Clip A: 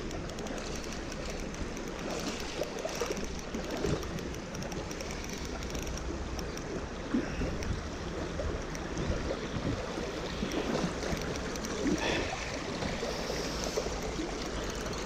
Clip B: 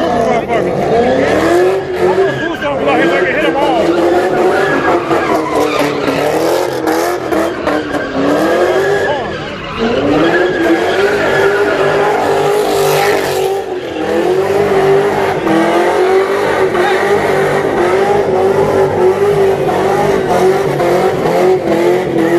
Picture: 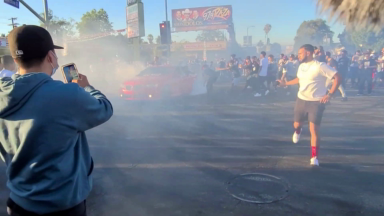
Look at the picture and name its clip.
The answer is B